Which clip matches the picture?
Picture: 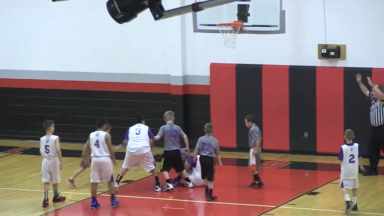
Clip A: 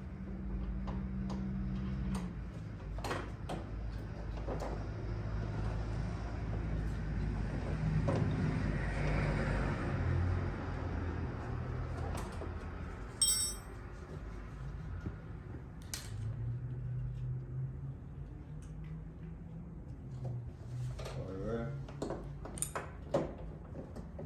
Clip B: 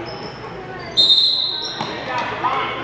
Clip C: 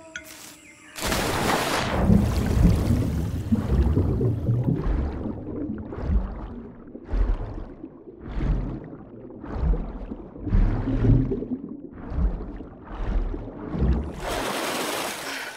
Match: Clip B